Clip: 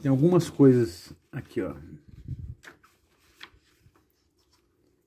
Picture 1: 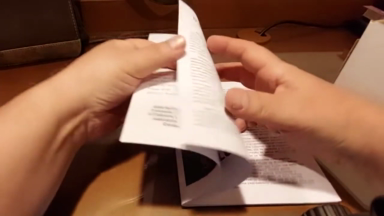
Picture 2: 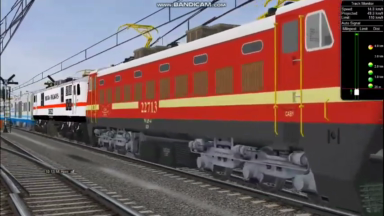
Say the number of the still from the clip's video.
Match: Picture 1